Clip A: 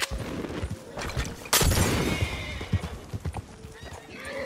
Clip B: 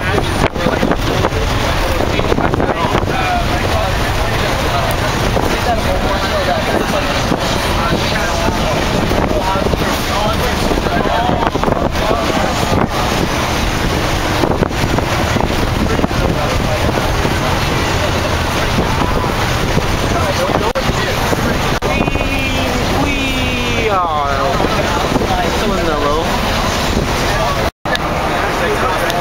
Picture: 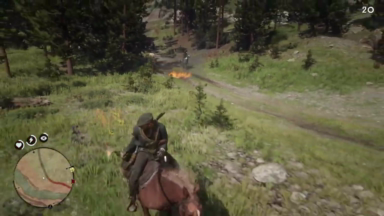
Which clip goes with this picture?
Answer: A